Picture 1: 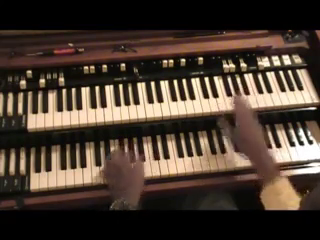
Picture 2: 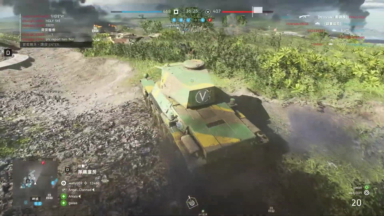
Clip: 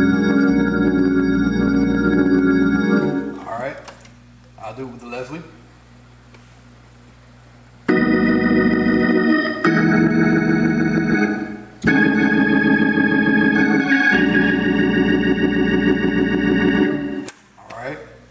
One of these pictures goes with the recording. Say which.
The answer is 1